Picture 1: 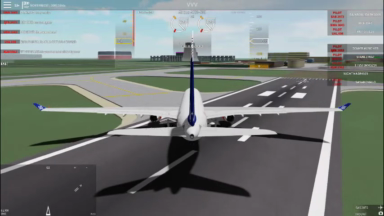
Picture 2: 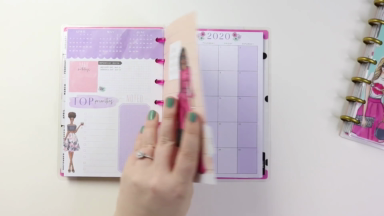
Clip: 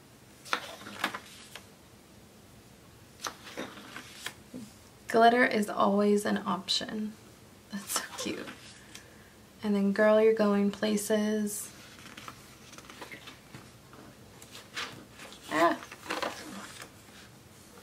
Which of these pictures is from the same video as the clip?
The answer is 2